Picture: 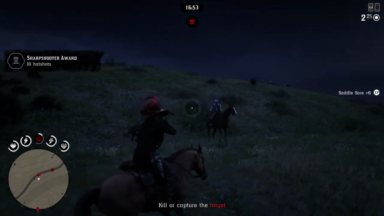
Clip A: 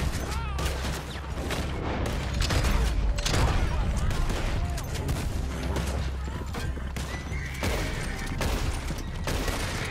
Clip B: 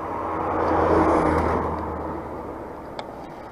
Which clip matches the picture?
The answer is A